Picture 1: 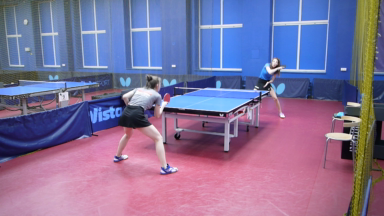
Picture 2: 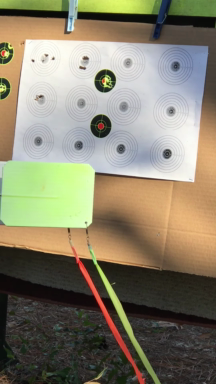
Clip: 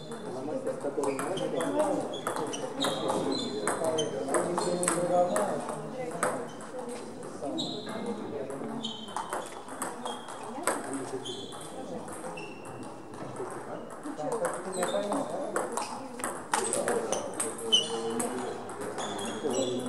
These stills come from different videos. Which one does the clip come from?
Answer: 1